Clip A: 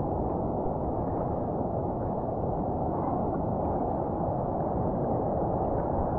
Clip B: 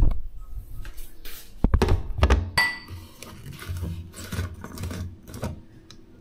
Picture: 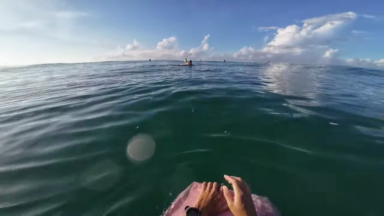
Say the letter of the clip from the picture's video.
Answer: A